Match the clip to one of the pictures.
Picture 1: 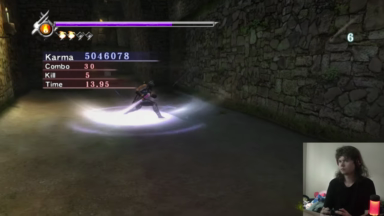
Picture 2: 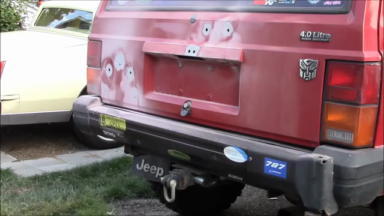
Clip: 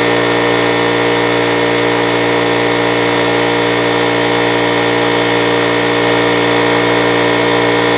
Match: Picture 2